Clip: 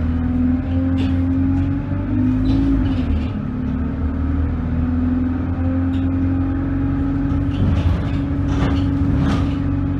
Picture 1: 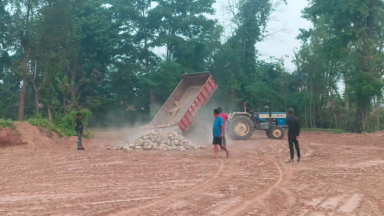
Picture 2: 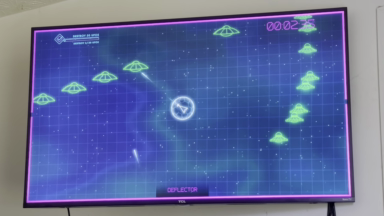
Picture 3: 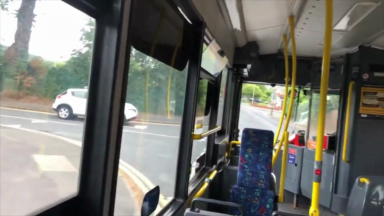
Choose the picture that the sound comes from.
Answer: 3